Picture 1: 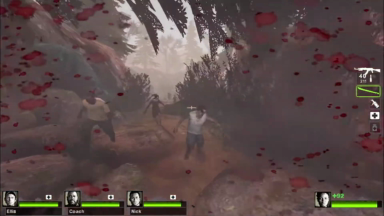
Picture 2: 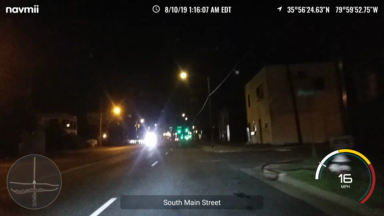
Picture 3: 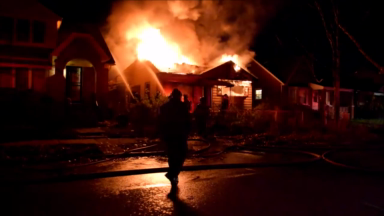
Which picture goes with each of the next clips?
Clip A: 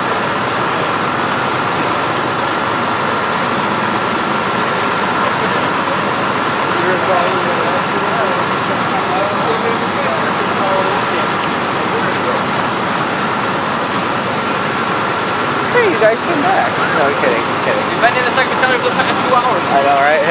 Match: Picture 3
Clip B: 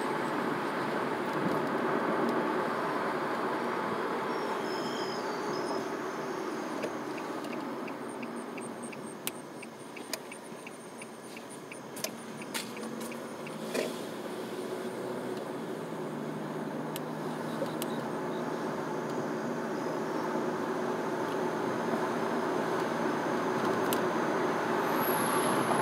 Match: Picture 2